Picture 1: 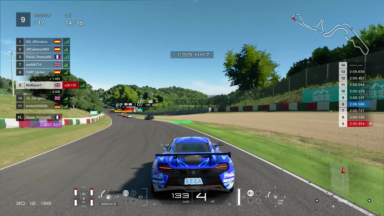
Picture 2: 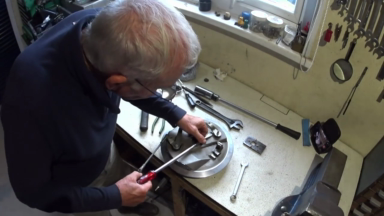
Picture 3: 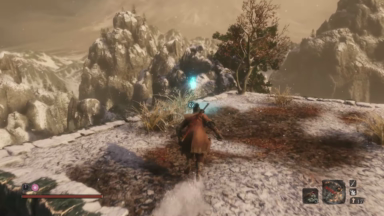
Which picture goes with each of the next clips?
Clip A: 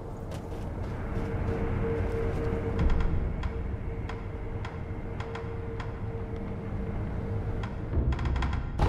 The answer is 3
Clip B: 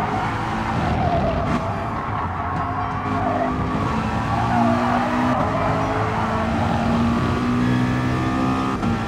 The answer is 1